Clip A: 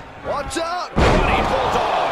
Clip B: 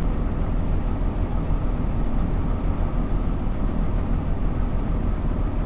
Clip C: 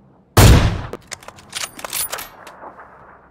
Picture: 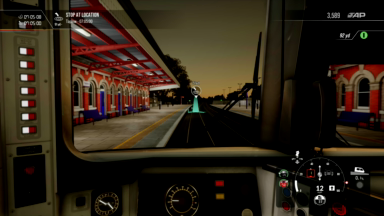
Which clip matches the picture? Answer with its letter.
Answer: B